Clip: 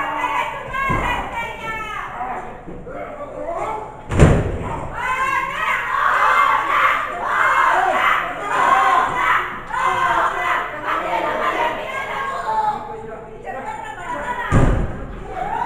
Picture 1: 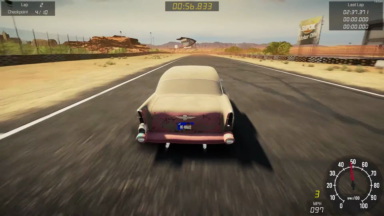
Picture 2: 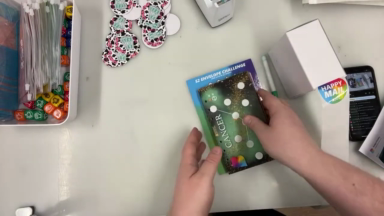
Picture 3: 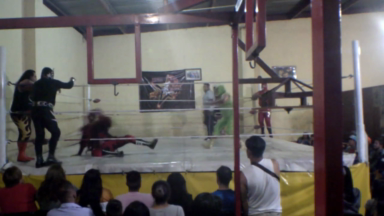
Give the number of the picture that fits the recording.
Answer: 3